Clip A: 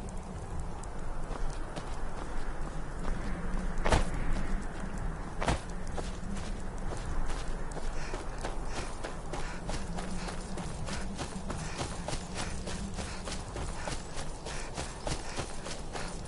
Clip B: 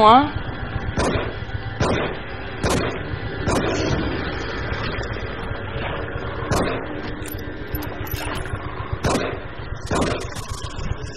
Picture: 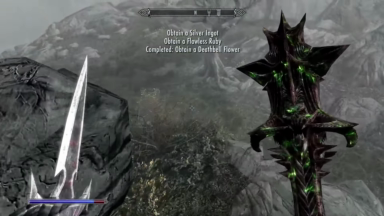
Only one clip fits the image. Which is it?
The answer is A